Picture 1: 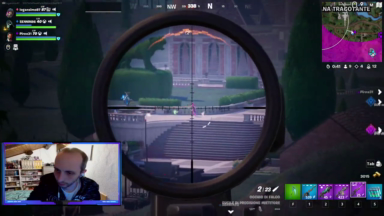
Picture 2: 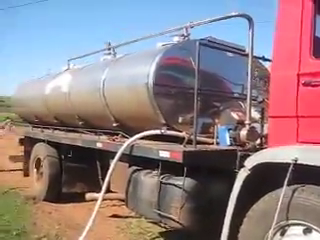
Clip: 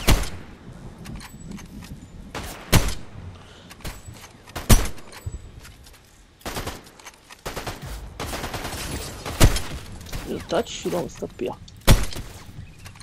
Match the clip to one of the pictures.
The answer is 1